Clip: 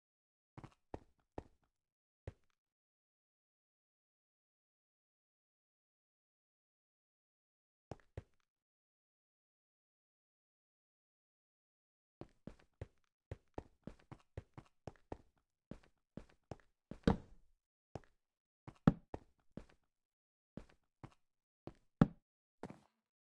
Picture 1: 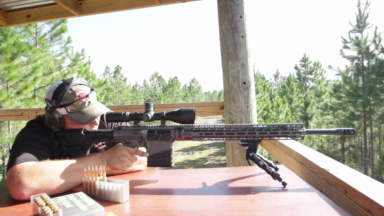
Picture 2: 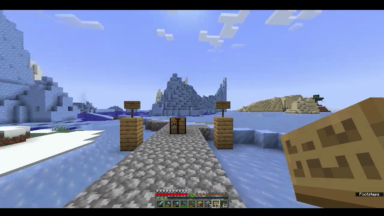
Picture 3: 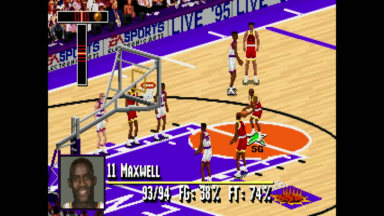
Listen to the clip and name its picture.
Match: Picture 2